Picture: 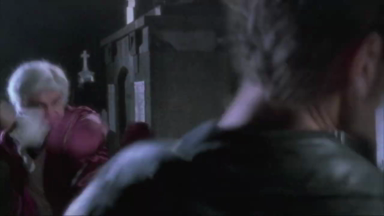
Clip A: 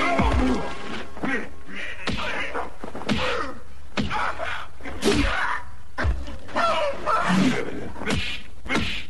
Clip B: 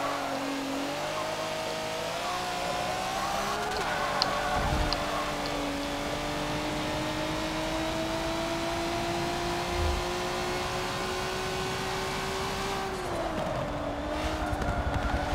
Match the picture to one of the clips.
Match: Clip A